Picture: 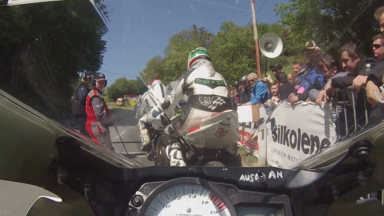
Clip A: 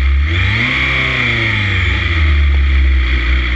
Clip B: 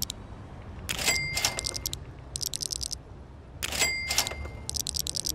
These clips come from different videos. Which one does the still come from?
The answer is A